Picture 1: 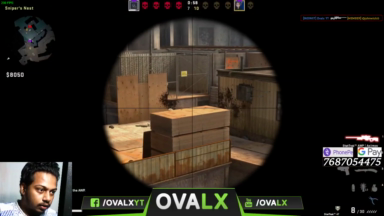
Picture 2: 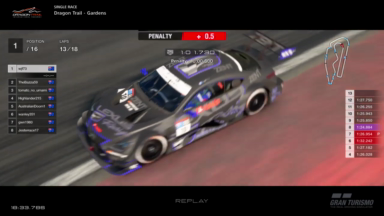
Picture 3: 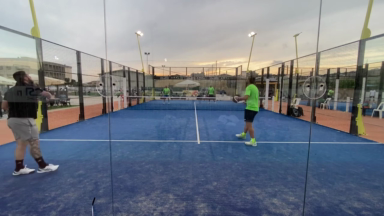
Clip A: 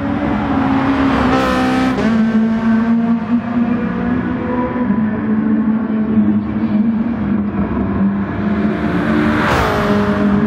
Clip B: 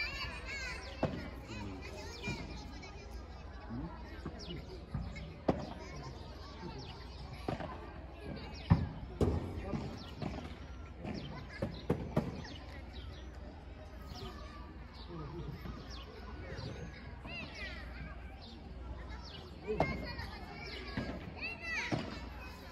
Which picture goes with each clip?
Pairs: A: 2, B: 3